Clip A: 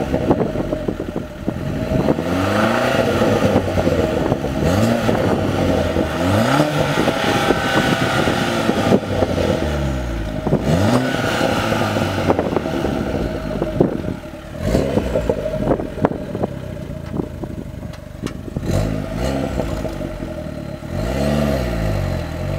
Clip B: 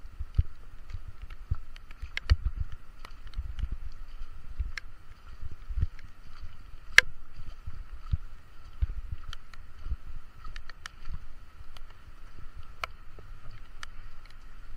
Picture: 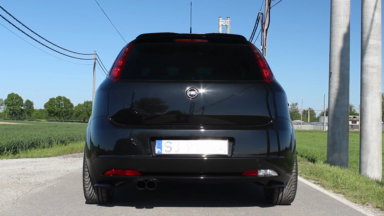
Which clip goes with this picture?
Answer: A